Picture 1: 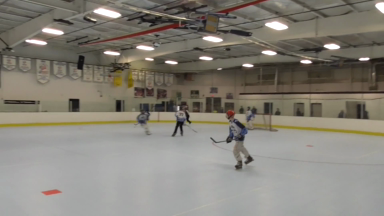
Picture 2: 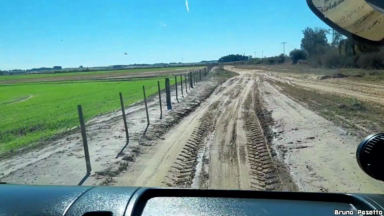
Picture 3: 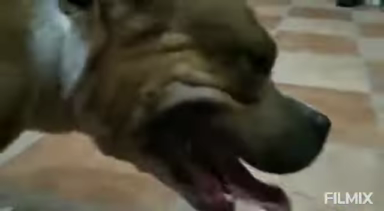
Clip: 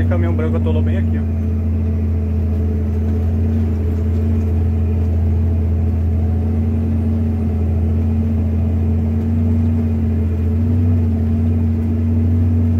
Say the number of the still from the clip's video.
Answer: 2